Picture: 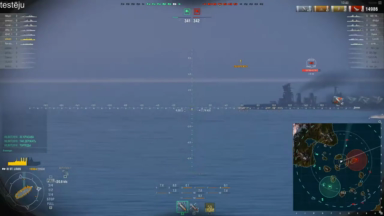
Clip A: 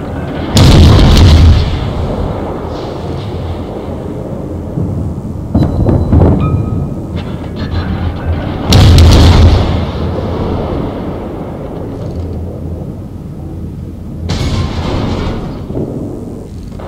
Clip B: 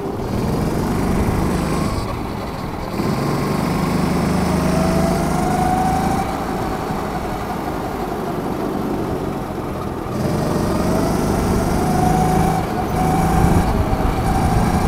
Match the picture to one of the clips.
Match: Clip A